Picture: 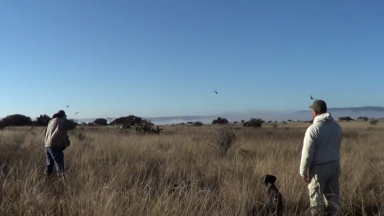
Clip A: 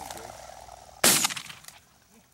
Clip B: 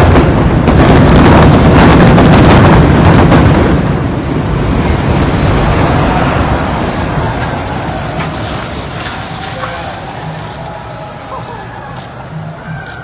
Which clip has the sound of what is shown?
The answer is A